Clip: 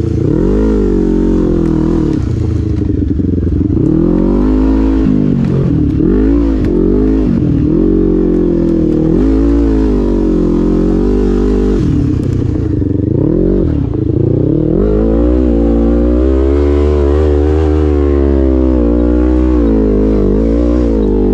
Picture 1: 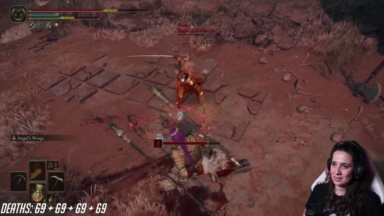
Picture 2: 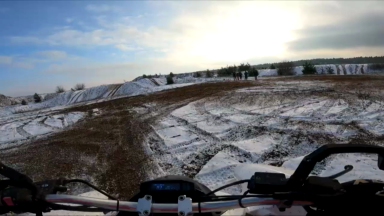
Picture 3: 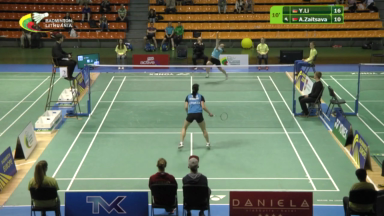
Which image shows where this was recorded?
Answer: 2